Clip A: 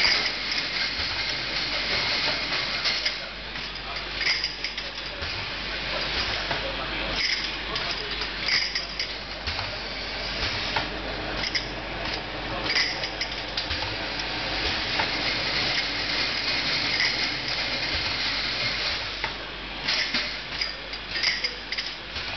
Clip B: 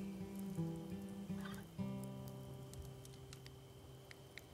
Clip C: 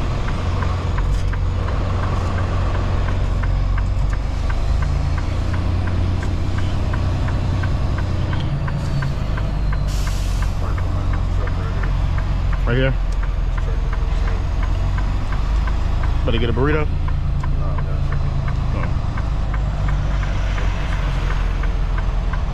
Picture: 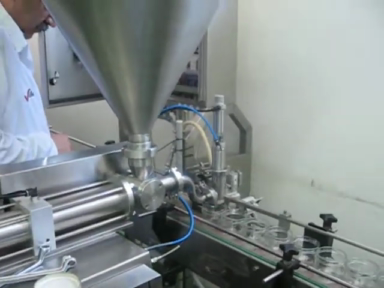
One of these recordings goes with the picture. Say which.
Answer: A